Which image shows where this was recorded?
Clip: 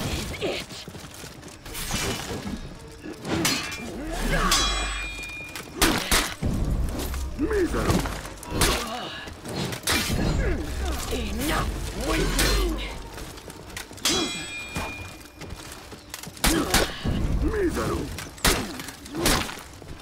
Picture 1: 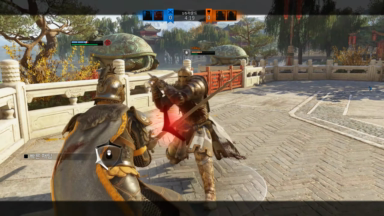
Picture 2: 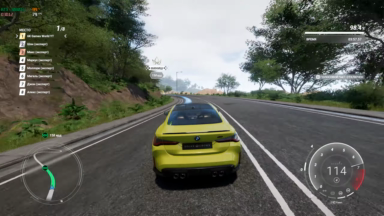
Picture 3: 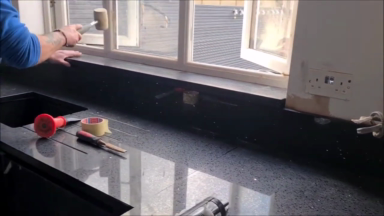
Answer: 1